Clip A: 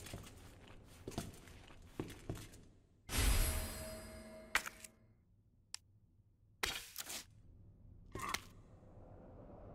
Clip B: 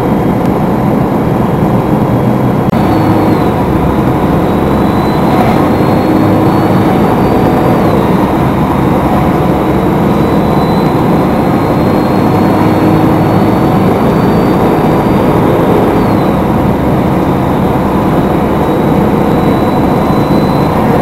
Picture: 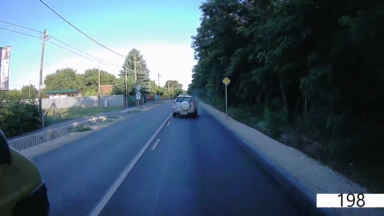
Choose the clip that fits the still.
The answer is B